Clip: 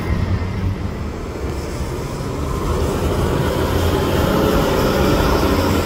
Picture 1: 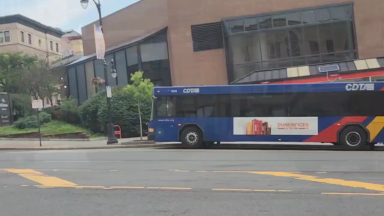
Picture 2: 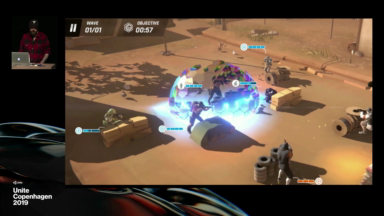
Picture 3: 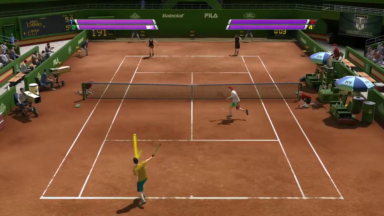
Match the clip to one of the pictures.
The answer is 1